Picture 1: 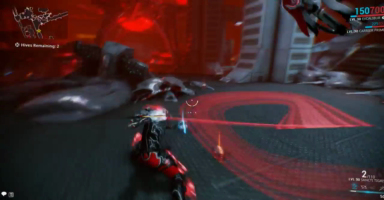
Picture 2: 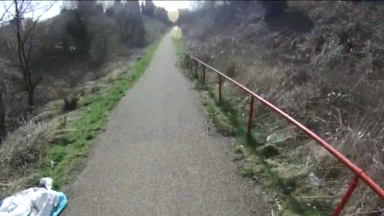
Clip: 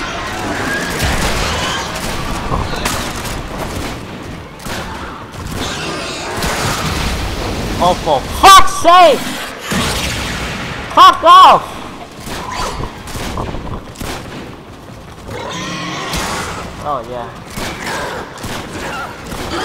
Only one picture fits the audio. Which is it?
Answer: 1